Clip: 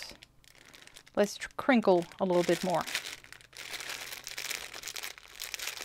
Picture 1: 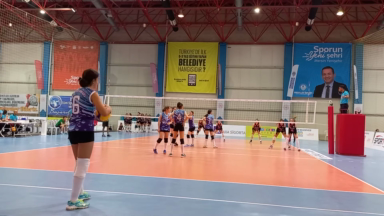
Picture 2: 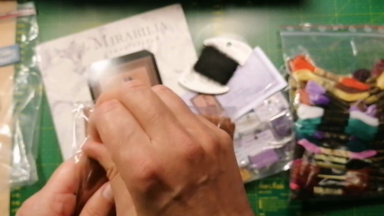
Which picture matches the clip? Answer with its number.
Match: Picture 2